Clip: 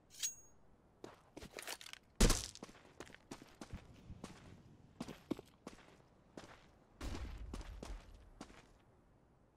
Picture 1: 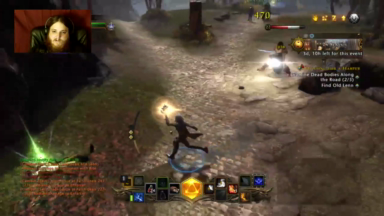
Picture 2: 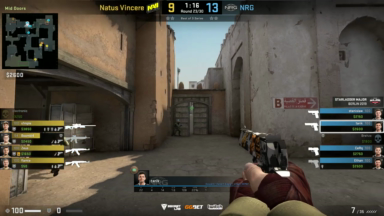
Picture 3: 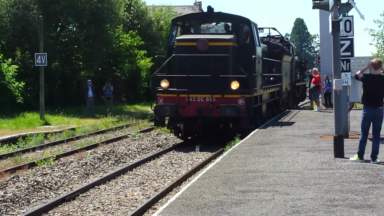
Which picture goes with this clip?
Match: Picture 2